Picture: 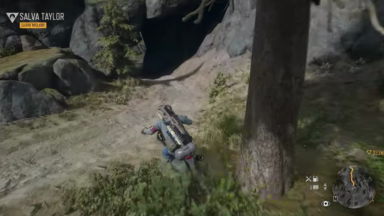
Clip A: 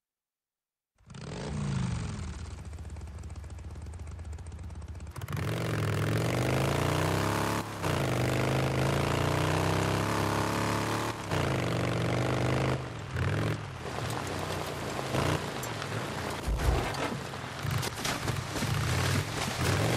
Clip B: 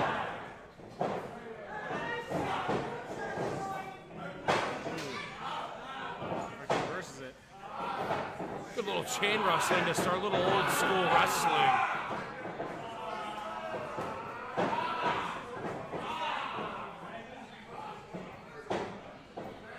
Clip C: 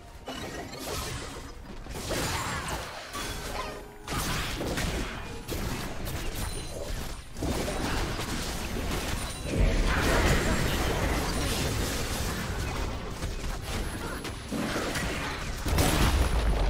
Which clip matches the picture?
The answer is A